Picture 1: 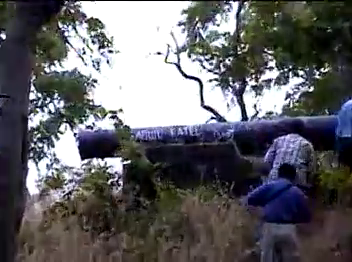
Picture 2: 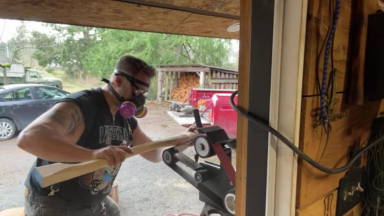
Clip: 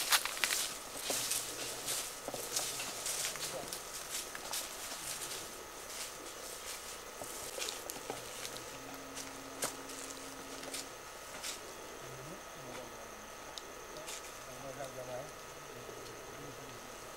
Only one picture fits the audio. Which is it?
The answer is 1